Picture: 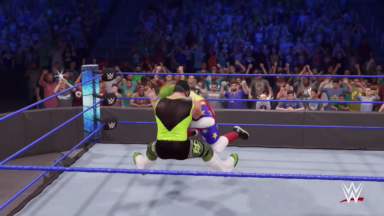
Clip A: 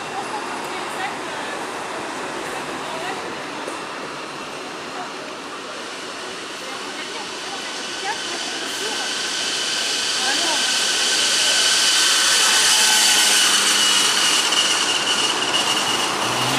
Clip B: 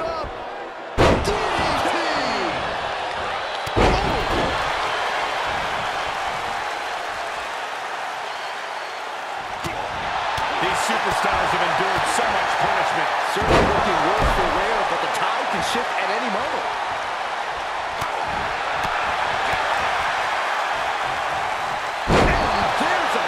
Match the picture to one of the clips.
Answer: B